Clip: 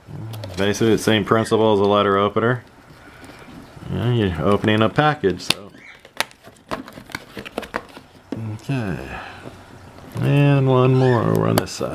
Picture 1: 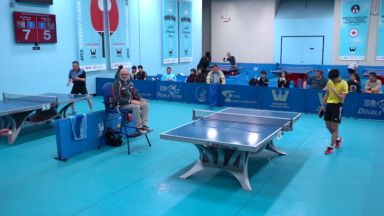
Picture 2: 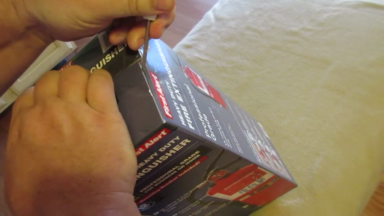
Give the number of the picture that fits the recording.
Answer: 2